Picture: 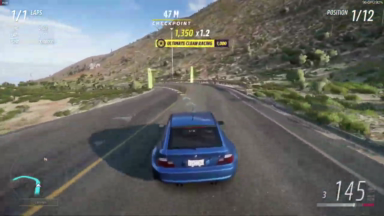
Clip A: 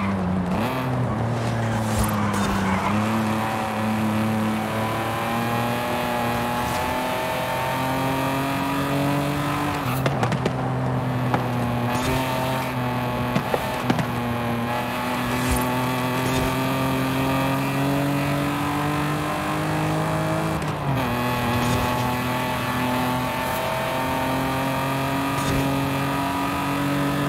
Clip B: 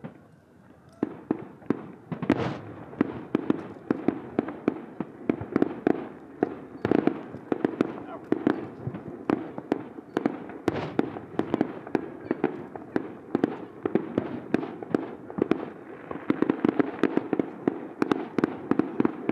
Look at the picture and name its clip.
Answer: A